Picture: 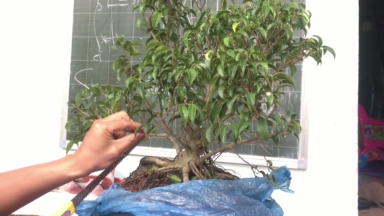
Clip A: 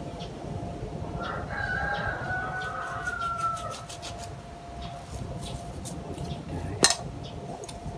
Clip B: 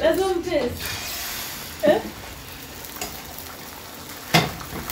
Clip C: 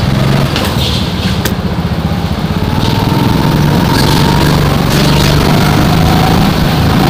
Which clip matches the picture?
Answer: A